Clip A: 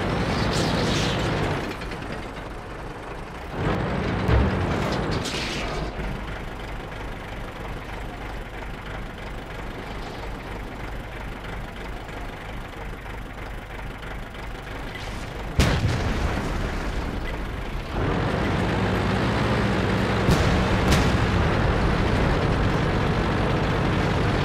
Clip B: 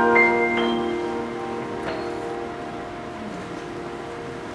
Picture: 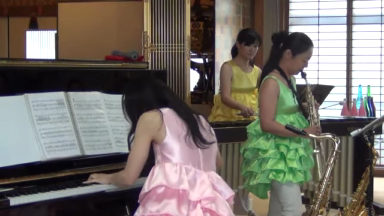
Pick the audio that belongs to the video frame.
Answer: B